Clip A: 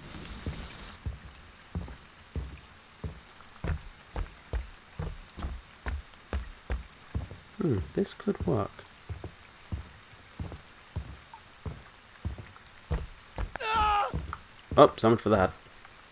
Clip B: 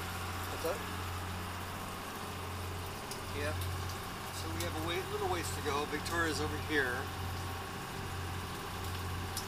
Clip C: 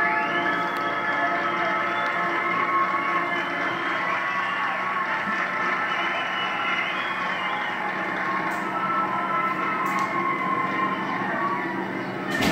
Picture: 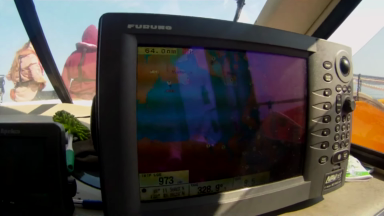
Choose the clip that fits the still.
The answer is B